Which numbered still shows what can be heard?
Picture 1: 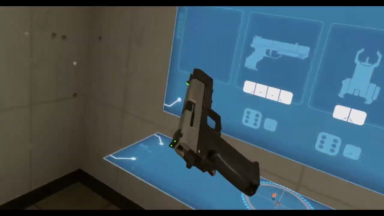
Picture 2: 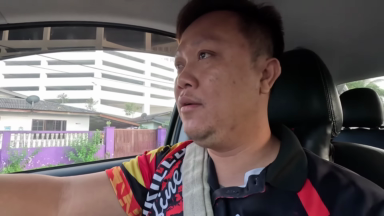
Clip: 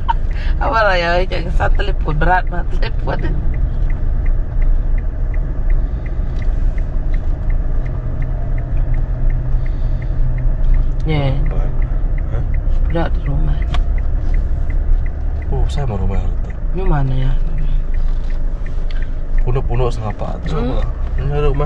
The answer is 2